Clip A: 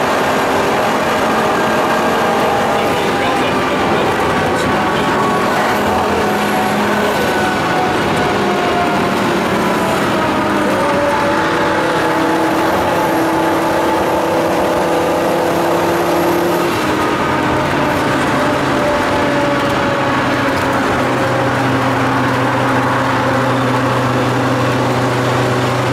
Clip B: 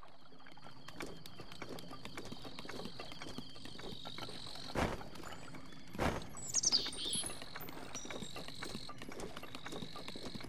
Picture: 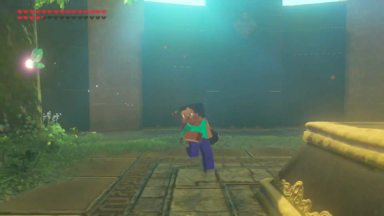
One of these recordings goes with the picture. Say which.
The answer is B